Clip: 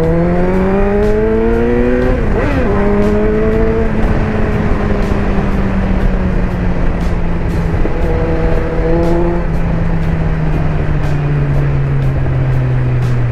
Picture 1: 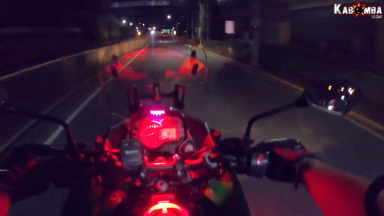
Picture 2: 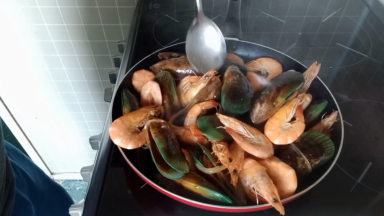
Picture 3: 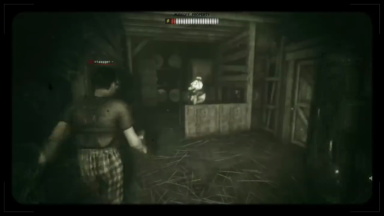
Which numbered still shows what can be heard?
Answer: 1